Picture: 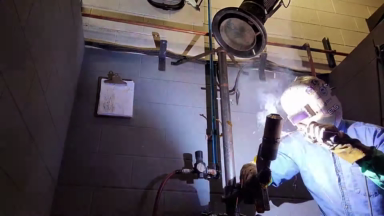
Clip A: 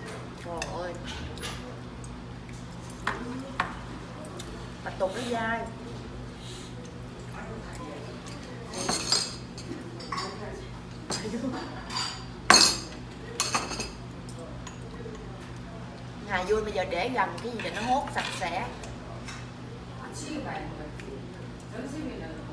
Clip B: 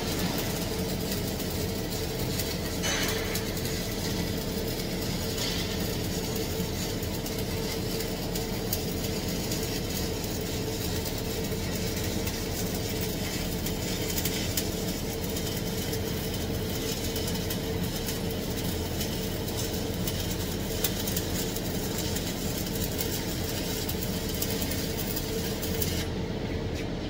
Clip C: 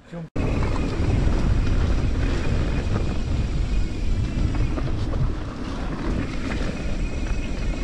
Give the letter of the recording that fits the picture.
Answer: B